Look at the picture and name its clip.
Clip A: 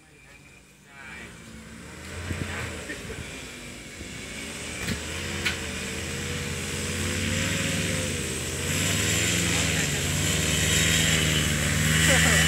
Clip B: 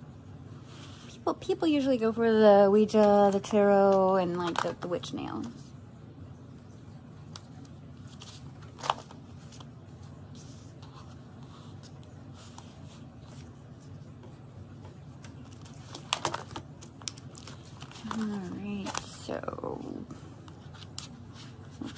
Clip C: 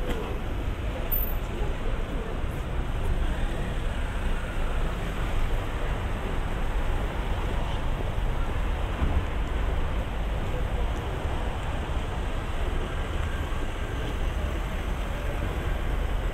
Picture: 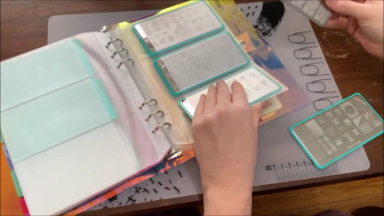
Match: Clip B